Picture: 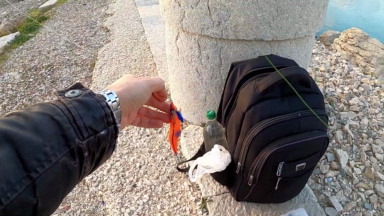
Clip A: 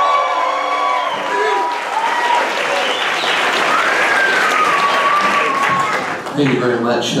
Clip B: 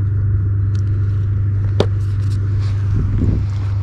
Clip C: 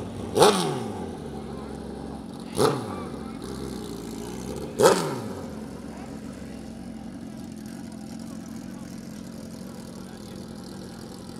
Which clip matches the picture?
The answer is B